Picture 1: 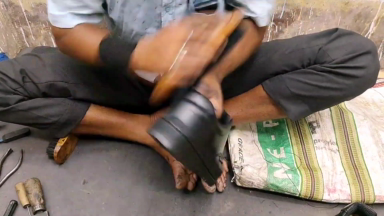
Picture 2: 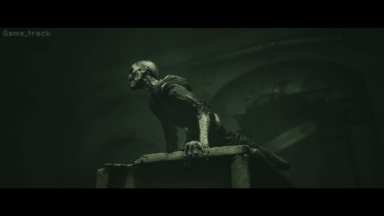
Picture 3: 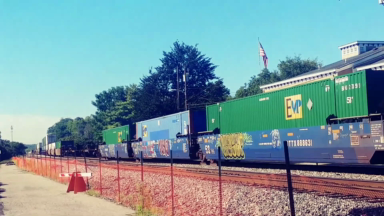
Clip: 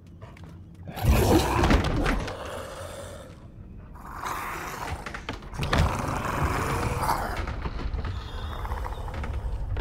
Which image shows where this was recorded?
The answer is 2